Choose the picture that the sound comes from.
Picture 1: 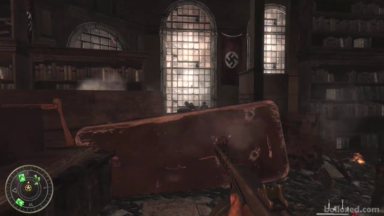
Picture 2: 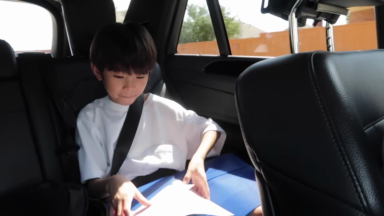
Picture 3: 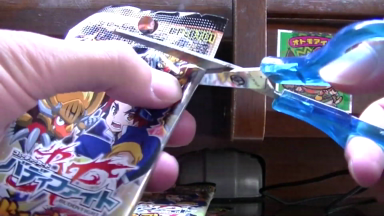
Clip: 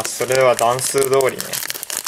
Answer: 3